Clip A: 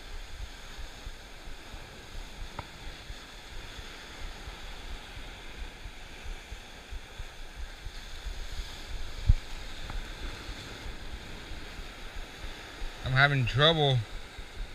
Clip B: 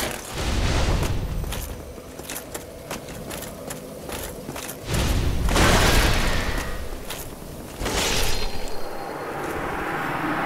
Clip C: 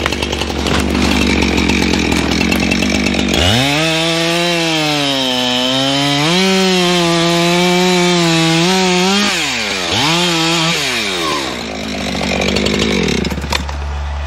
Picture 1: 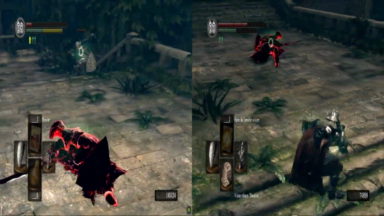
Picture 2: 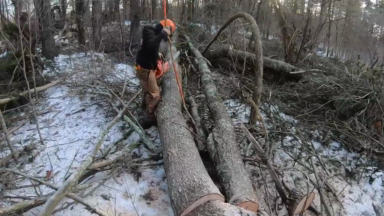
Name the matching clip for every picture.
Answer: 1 B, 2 C